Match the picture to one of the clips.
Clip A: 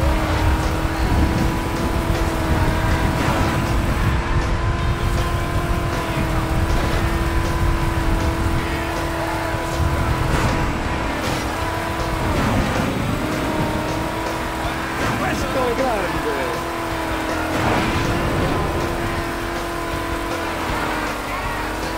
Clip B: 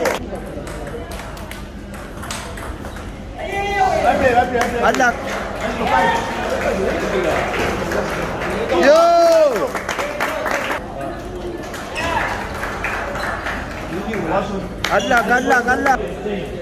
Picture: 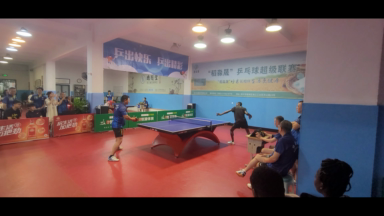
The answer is B